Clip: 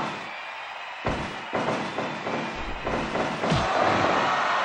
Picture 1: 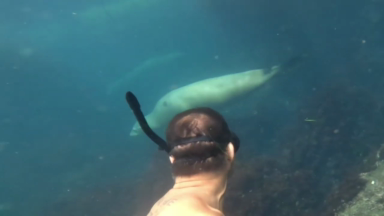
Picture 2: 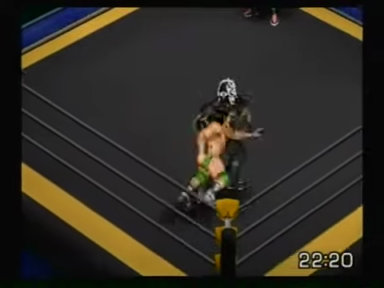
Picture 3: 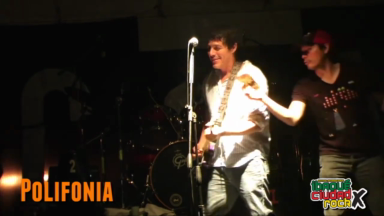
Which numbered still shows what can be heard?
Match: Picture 2